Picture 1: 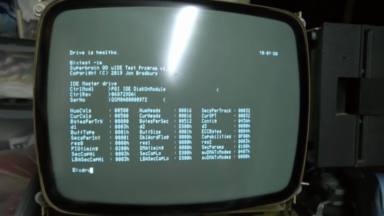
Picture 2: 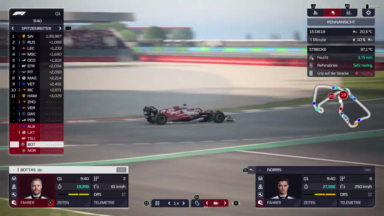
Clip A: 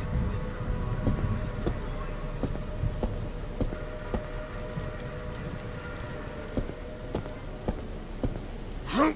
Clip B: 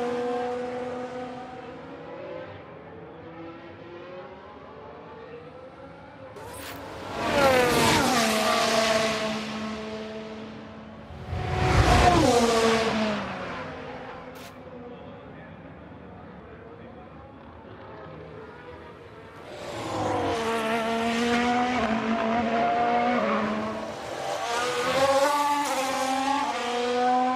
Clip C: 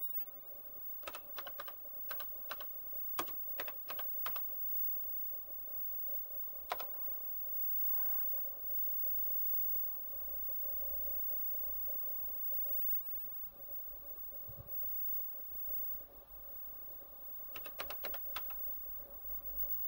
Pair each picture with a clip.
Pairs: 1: C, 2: B